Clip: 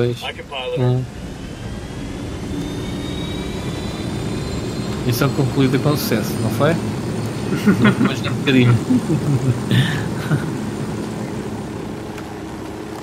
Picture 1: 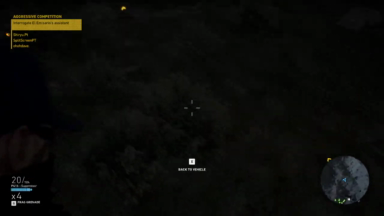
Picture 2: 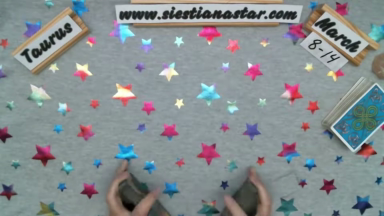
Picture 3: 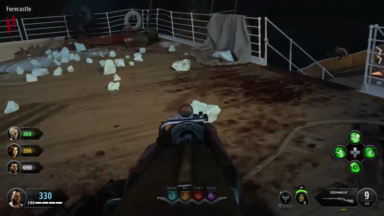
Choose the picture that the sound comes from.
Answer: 1